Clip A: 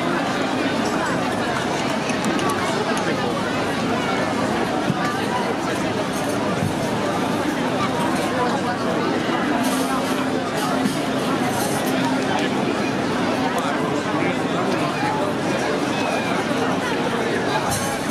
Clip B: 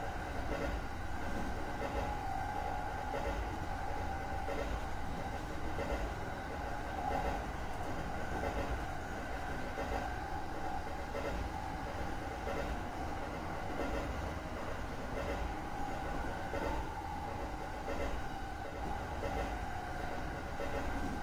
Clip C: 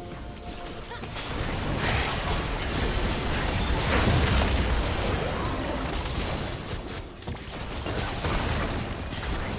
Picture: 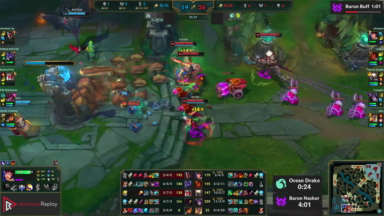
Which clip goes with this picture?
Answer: C